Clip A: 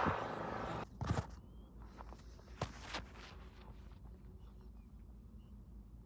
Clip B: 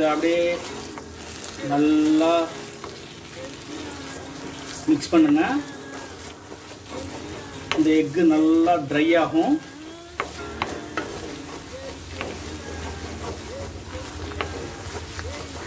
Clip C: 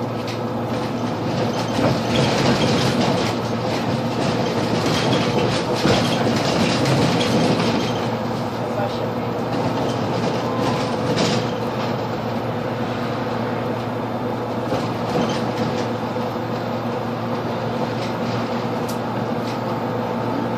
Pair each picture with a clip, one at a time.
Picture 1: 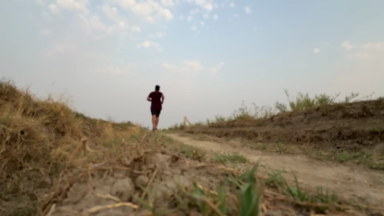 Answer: A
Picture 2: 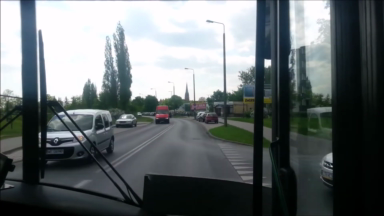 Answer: C